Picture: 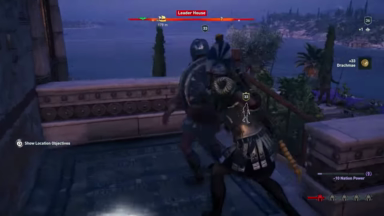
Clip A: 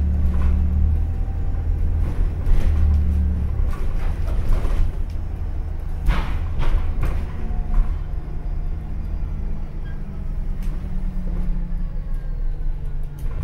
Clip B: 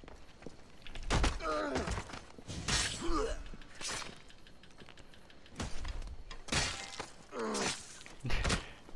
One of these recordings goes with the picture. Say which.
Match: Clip B